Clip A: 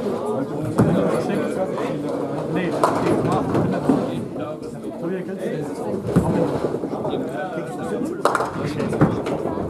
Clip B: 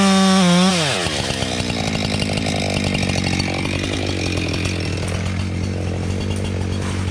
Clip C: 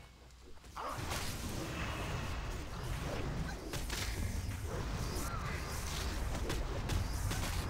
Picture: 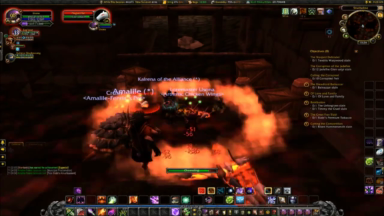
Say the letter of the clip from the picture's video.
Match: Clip C